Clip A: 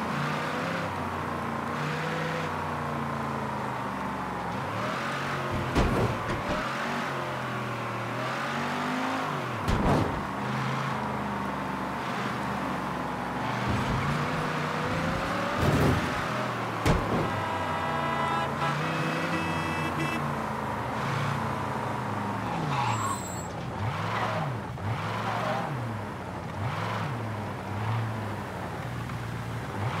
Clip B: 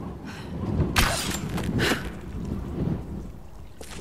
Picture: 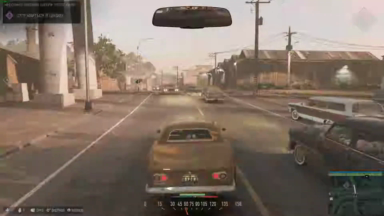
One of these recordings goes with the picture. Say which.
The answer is A